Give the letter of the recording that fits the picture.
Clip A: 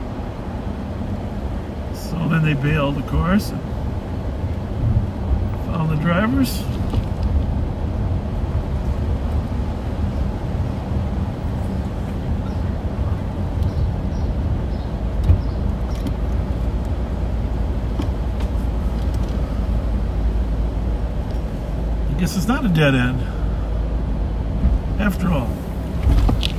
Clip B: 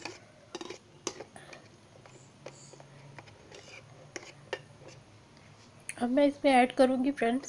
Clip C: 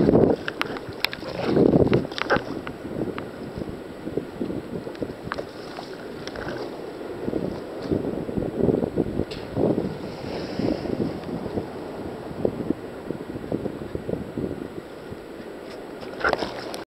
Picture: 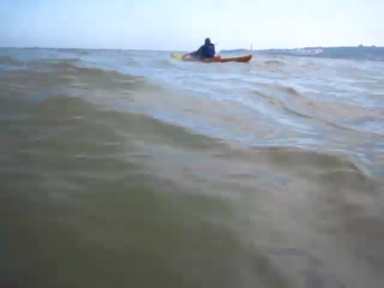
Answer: C